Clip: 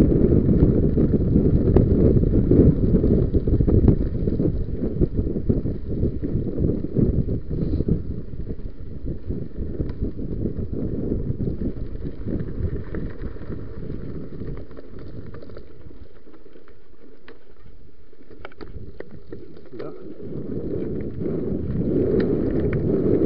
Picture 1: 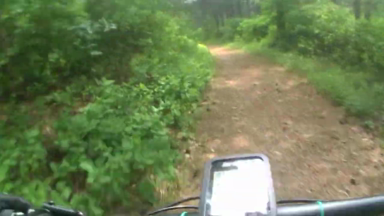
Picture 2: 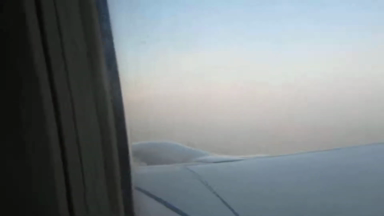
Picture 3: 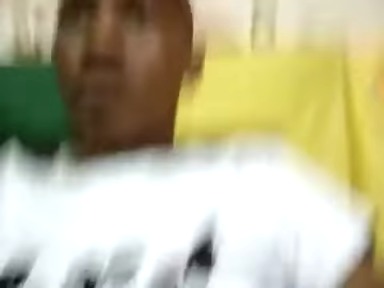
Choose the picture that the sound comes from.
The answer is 1